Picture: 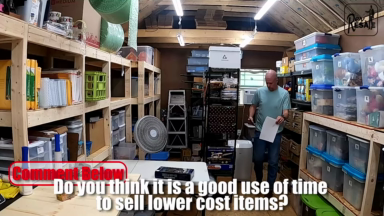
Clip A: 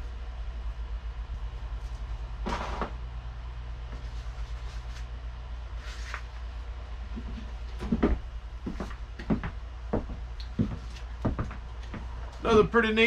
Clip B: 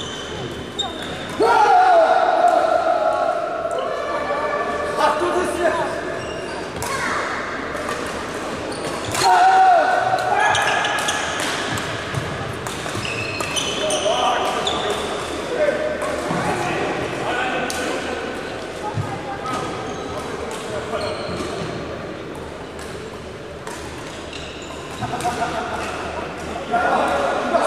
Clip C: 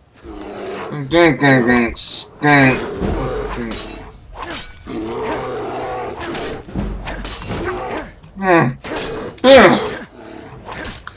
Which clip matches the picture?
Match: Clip A